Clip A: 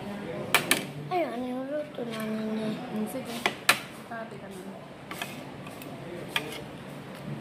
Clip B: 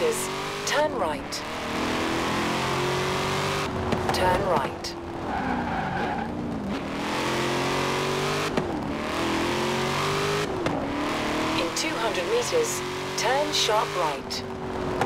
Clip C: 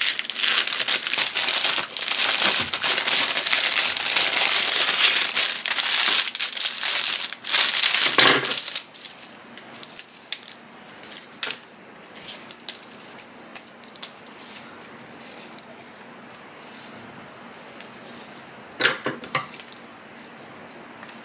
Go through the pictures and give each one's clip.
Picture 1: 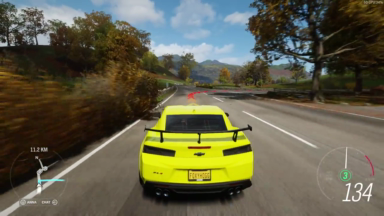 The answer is B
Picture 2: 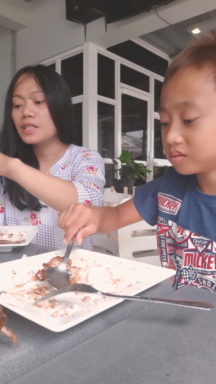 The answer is A